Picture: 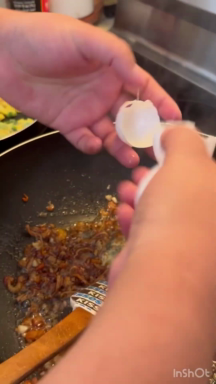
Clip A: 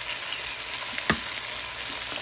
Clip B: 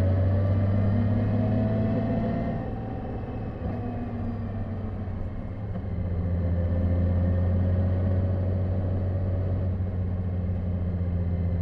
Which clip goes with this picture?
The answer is A